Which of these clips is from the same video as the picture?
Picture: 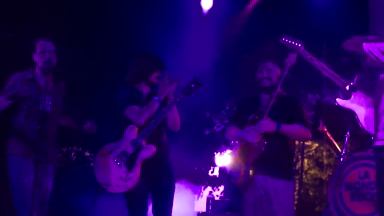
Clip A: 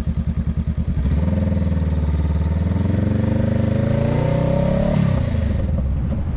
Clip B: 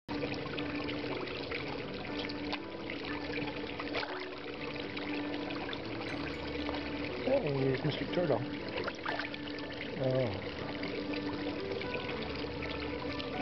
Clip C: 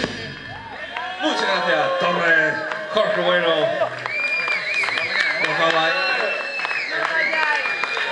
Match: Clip C